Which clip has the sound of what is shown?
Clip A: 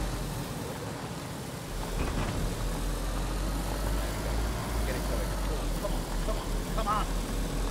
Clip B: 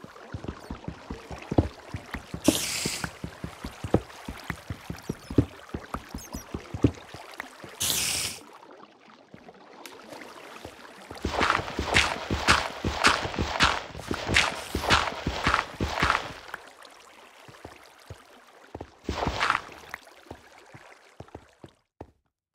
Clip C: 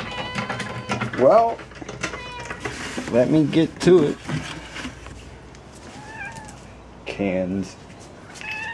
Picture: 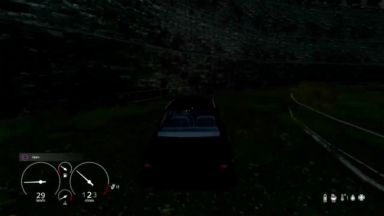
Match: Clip A